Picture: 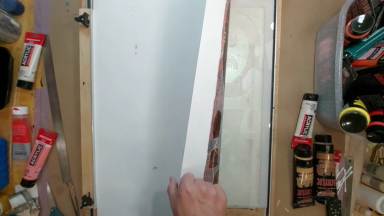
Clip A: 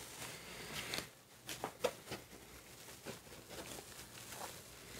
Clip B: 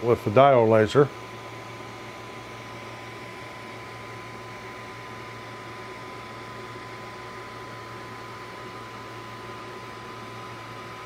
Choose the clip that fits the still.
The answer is A